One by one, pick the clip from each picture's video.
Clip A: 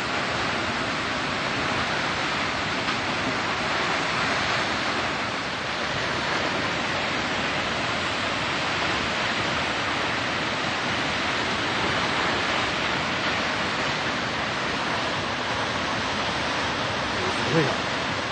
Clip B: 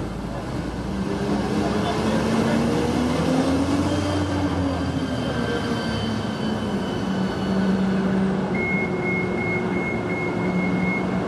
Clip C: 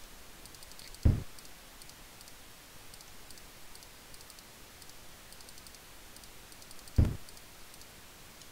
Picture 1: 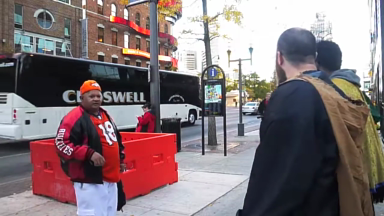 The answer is B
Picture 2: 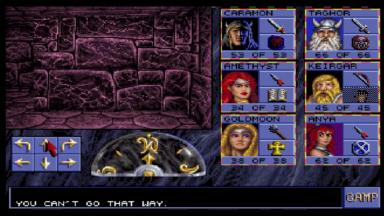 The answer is C